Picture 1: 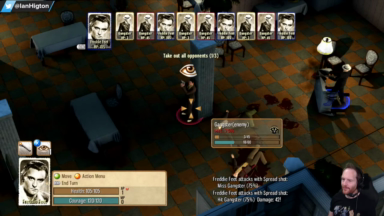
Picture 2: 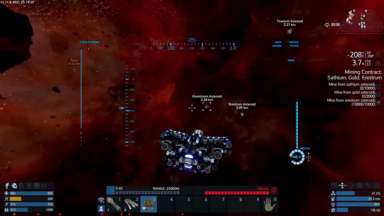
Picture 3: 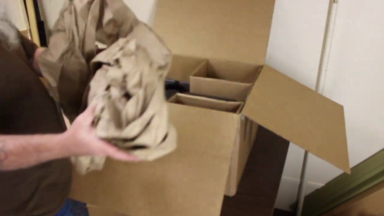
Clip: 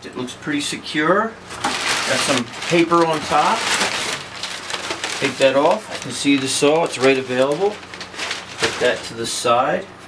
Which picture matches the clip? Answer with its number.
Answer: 3